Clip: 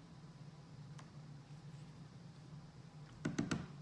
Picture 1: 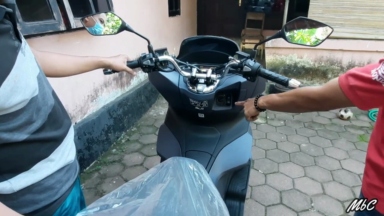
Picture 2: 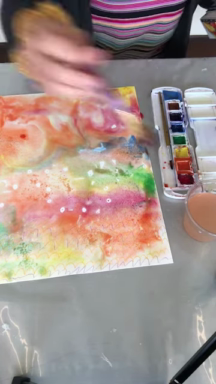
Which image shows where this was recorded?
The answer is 2